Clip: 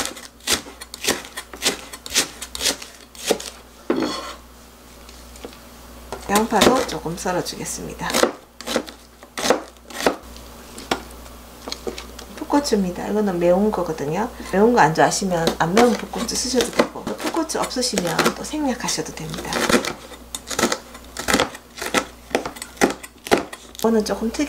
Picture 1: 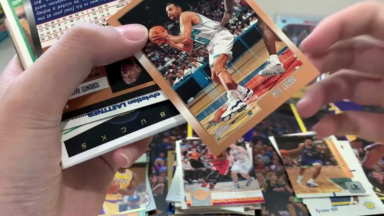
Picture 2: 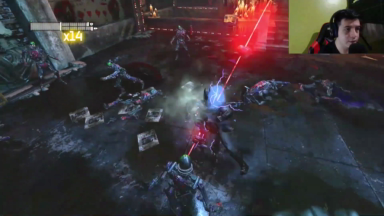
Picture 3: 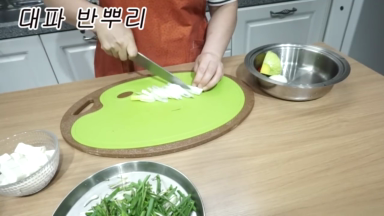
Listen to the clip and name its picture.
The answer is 3